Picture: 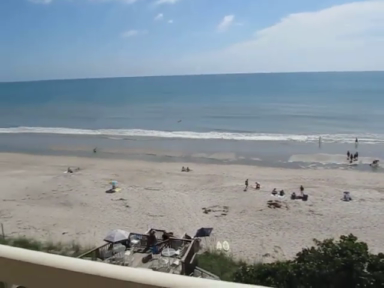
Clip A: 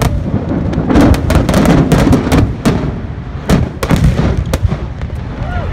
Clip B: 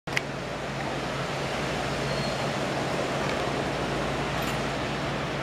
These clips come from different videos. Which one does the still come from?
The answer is B